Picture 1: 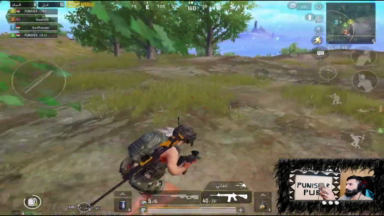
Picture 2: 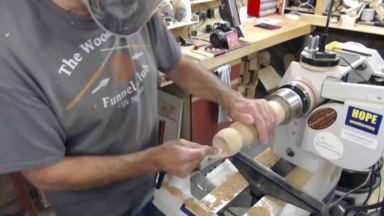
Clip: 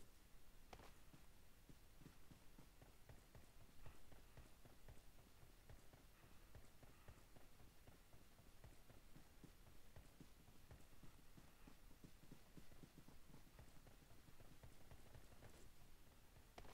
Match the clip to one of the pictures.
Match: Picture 1